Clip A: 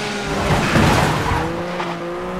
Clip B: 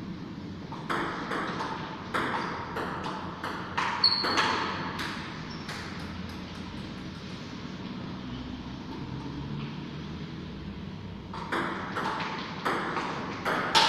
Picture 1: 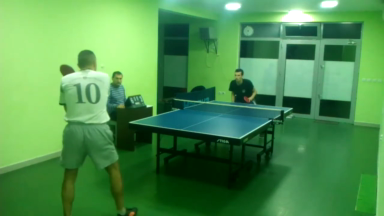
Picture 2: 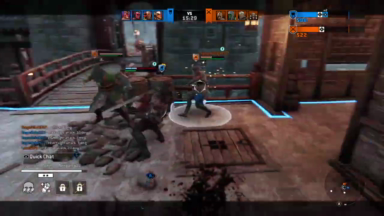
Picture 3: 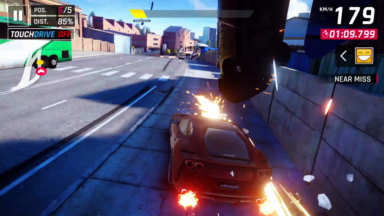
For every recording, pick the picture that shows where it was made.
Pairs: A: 3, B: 1